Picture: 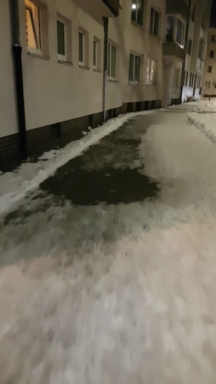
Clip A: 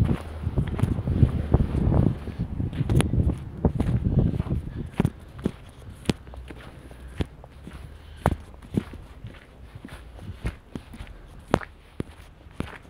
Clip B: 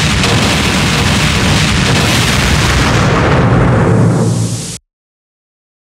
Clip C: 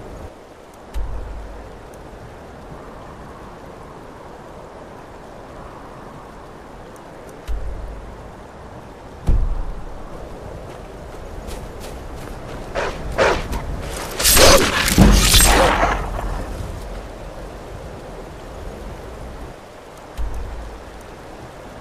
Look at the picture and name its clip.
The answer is A